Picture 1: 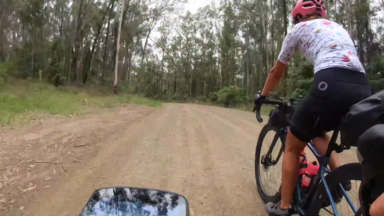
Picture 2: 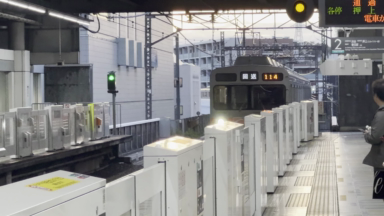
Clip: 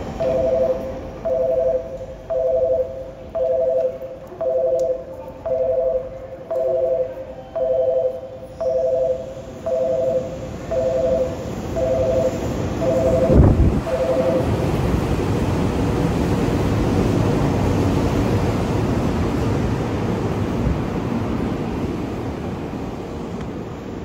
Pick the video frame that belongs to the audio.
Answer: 2